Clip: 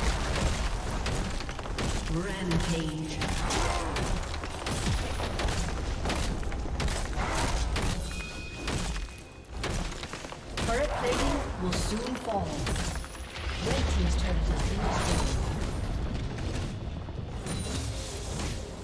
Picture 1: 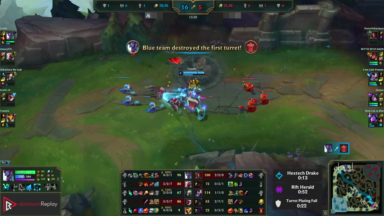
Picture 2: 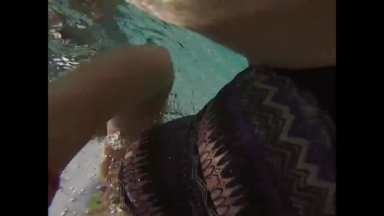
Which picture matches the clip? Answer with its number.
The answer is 1